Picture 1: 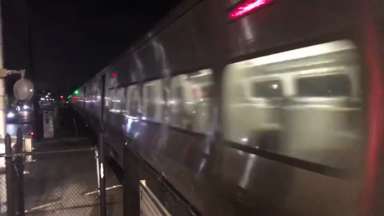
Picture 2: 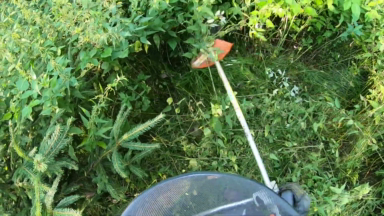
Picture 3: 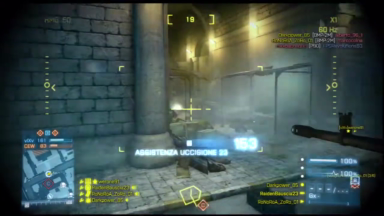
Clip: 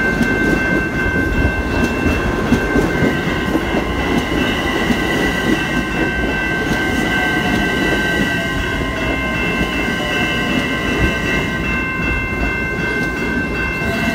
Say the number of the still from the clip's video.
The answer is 1